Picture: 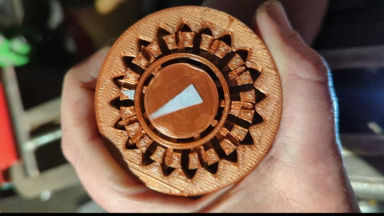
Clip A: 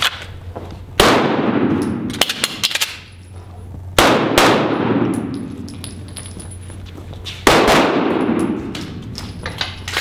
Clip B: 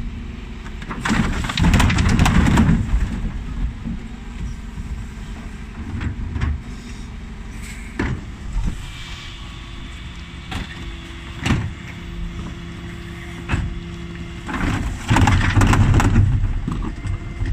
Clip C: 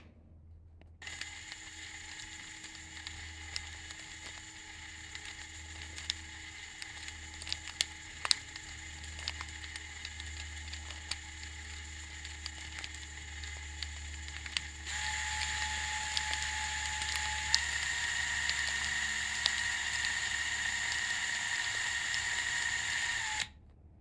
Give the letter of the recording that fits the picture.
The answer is C